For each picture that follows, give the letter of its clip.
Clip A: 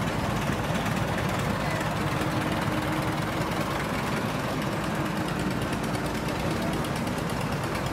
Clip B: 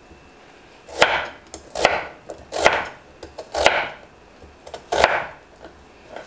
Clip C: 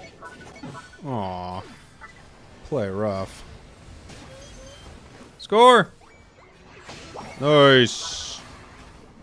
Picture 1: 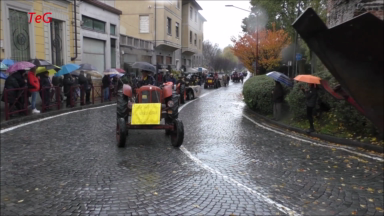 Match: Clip A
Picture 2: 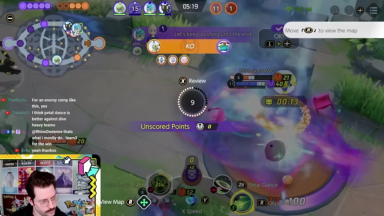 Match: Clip C